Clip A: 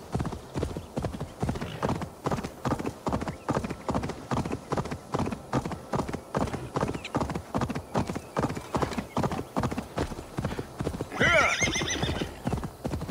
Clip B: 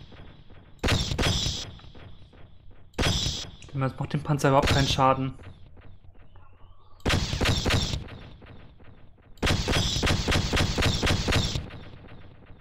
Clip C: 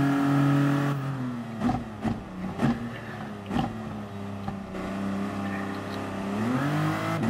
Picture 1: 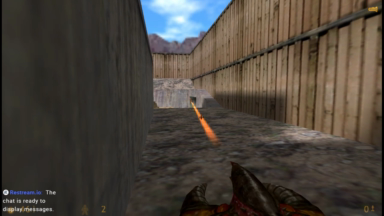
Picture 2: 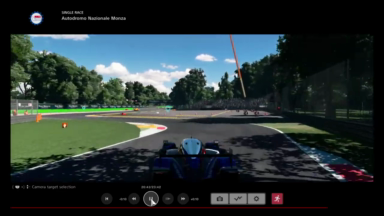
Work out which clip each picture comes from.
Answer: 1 B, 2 C